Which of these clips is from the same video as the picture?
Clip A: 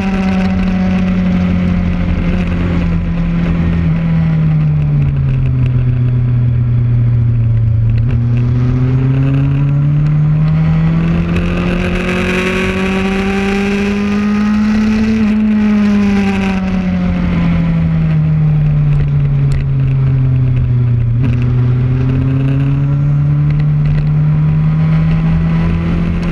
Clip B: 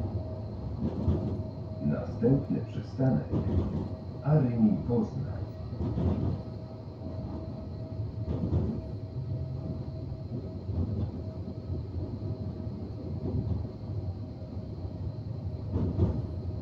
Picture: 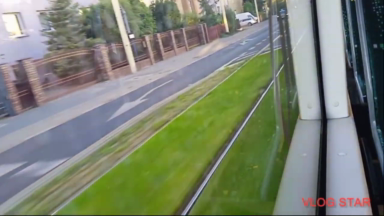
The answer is B